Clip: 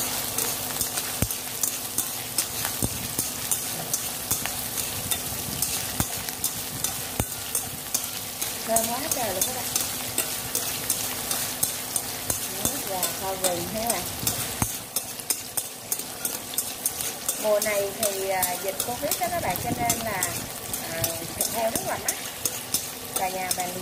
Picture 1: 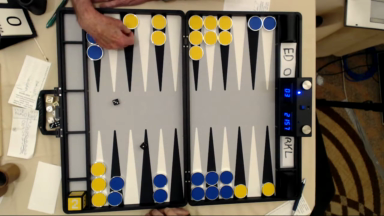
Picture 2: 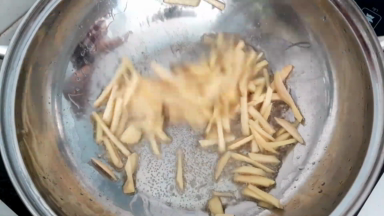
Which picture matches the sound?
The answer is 2